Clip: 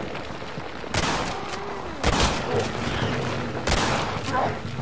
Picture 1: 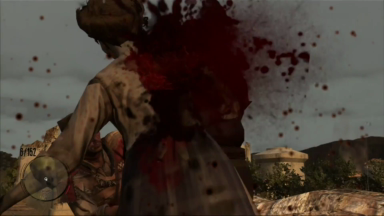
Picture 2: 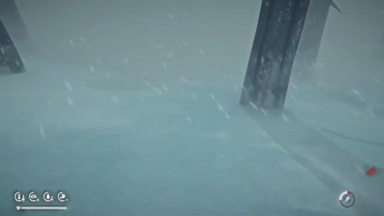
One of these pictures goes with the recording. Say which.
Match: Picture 1